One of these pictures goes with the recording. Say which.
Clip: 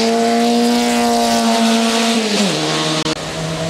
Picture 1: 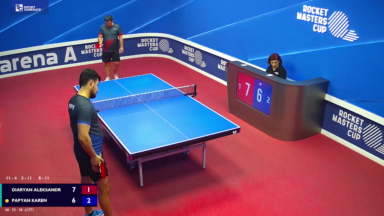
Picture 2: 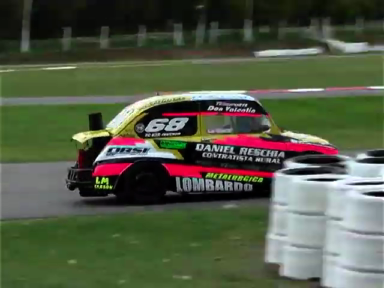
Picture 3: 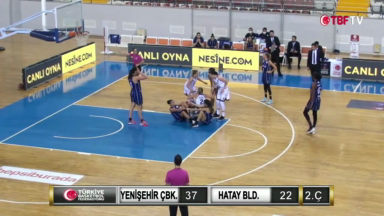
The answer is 2